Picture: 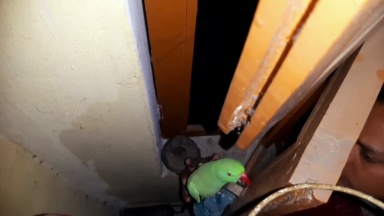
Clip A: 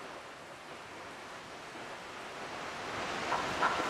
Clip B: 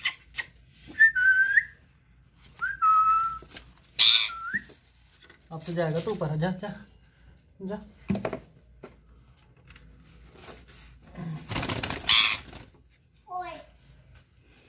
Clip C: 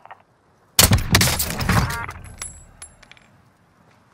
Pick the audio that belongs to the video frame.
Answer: B